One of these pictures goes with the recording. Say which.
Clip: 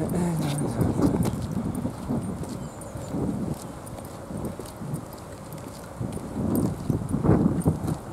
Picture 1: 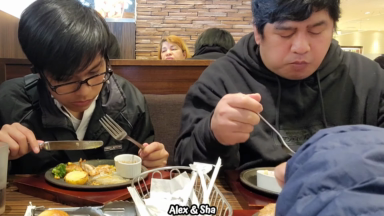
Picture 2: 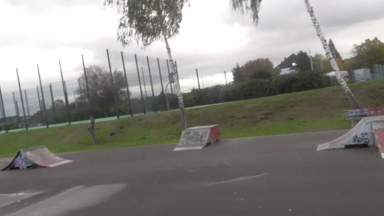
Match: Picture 2